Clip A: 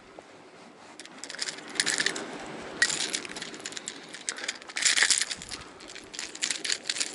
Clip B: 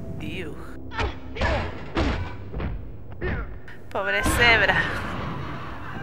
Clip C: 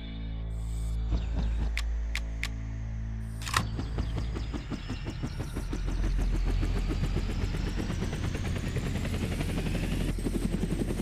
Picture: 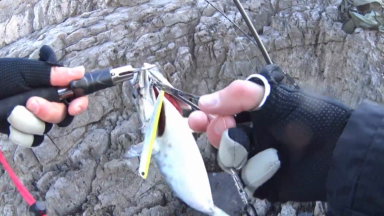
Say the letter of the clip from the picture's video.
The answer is A